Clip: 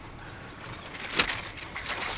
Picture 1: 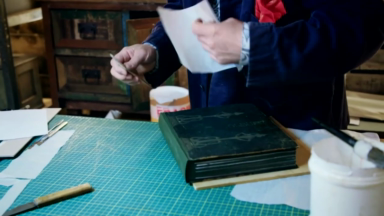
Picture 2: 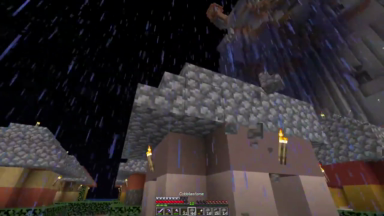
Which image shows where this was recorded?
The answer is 1